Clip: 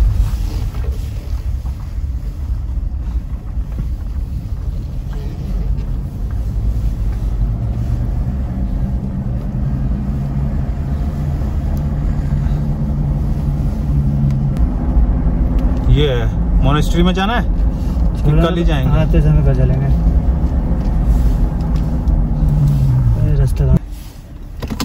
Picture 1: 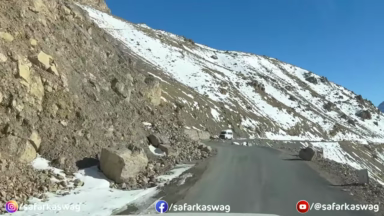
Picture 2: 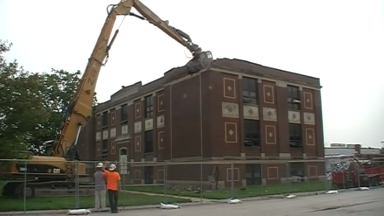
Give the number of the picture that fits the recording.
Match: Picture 1